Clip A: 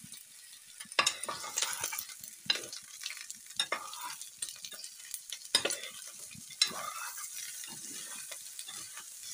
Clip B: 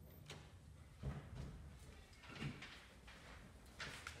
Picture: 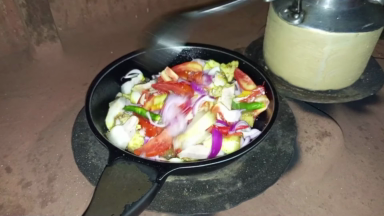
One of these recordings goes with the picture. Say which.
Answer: A